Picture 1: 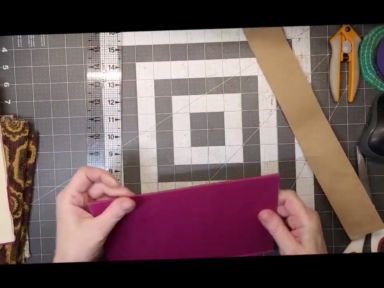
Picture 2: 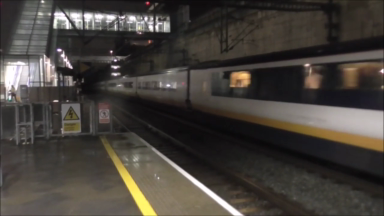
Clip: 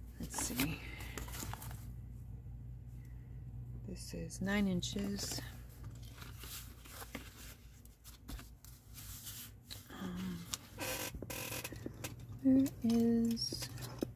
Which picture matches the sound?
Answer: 1